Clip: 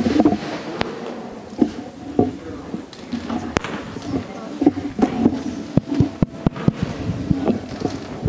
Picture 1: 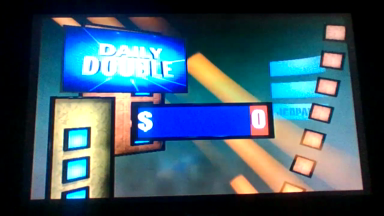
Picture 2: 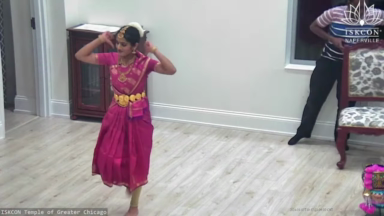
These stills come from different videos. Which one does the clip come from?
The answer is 2